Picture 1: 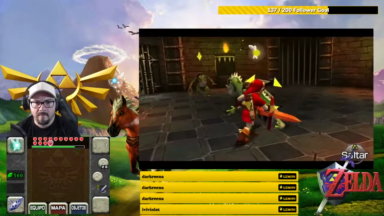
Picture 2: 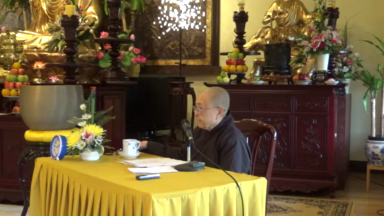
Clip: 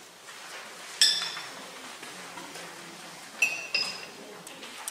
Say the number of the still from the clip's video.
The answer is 2